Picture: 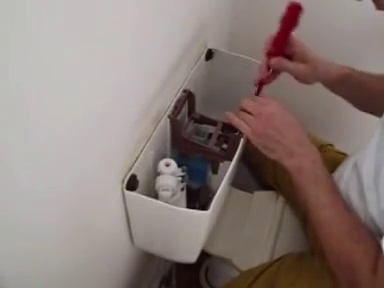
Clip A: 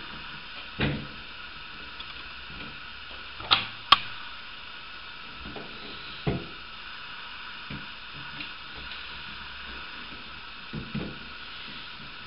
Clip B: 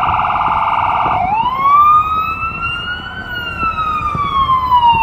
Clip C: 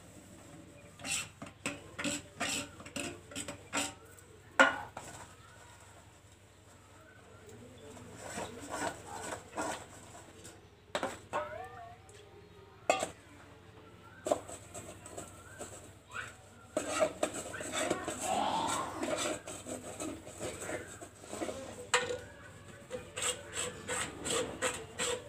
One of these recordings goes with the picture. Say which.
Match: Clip A